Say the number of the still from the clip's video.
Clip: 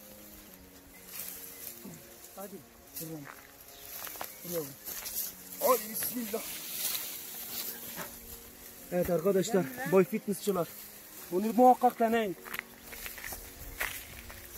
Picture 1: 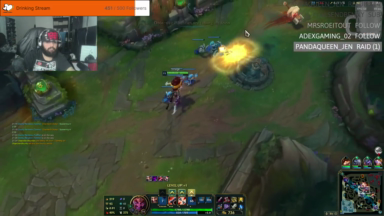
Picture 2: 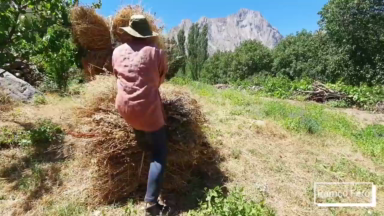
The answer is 2